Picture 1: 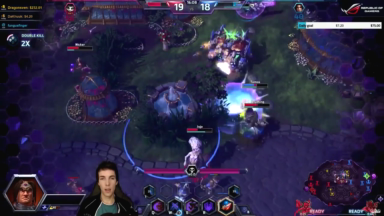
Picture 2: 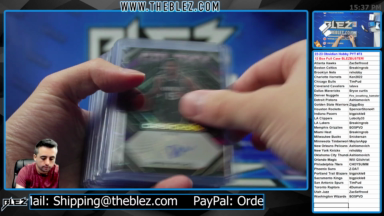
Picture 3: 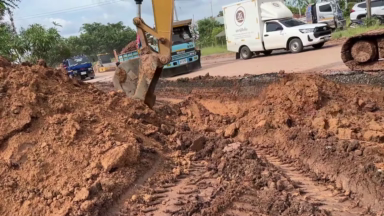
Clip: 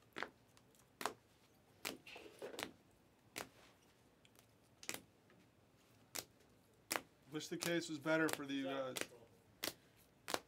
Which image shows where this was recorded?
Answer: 2